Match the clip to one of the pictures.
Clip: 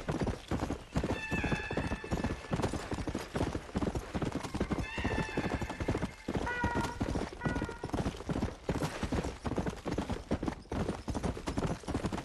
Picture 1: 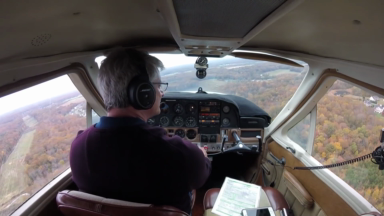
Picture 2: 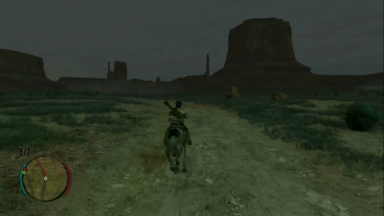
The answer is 2